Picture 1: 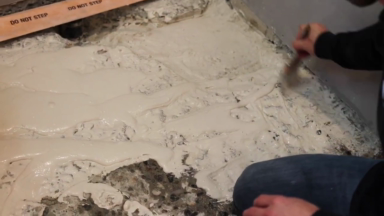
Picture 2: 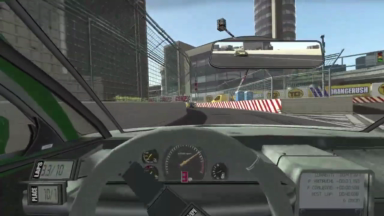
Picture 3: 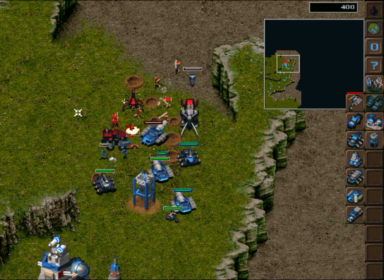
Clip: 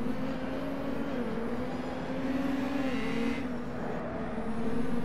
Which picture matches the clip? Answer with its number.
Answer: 2